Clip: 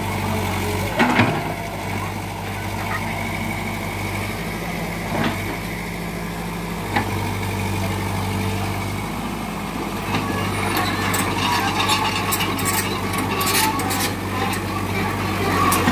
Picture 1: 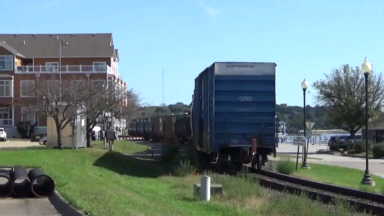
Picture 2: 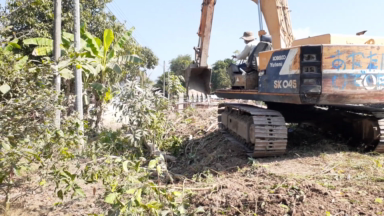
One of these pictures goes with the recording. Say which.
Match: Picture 2